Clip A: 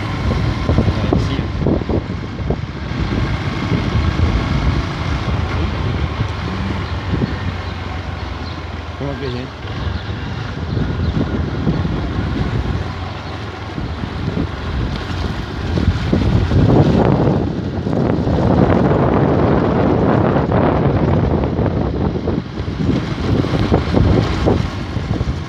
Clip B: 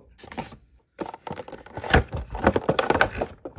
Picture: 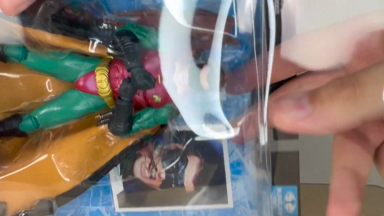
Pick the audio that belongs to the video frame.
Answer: B